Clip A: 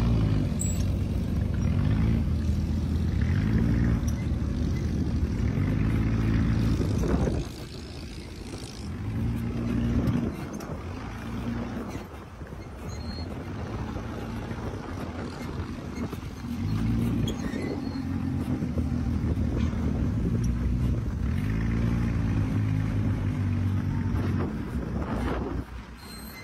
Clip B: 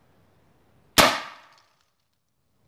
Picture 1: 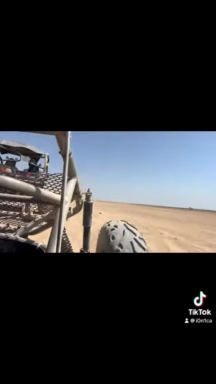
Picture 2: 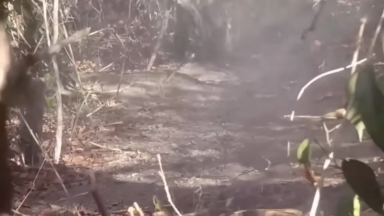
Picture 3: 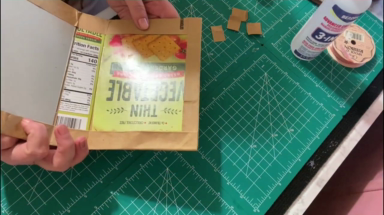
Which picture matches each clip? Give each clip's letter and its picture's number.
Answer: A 1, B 2